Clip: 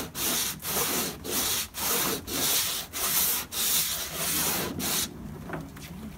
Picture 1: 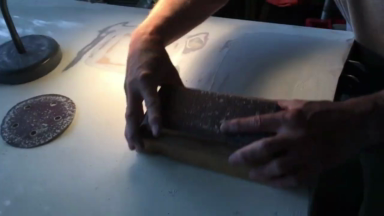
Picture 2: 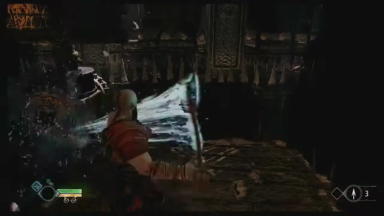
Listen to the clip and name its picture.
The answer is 1